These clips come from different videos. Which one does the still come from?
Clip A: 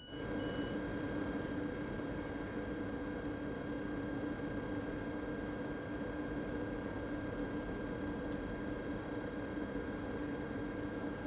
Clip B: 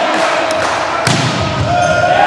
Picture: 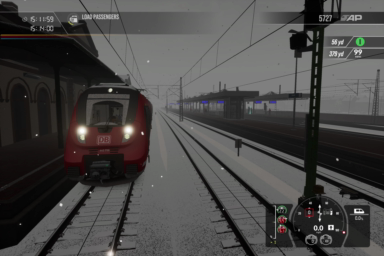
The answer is A